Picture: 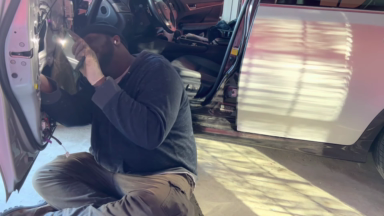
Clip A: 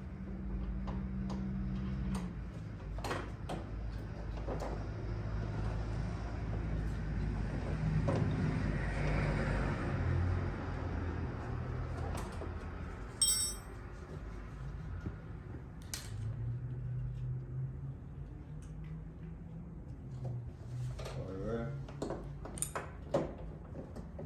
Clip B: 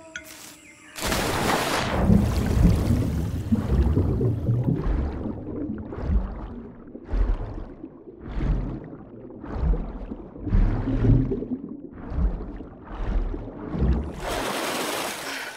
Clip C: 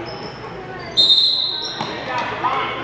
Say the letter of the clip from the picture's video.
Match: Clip A